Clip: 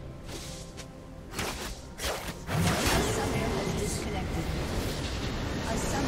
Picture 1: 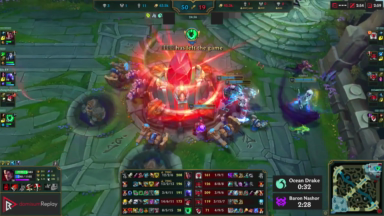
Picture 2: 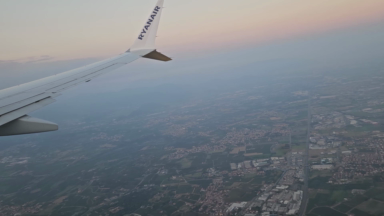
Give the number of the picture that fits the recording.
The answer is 1